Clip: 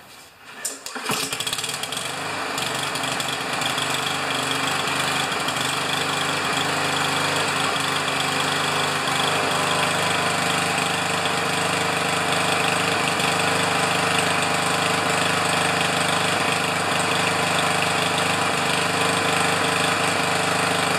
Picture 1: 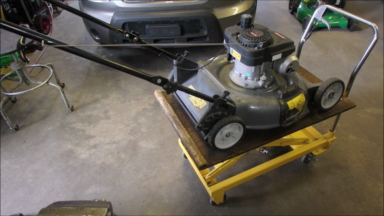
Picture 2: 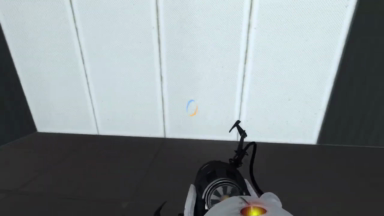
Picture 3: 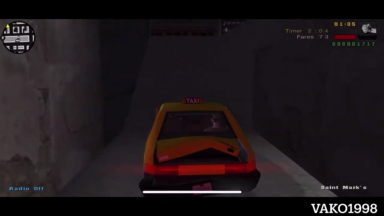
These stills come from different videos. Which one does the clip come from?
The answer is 1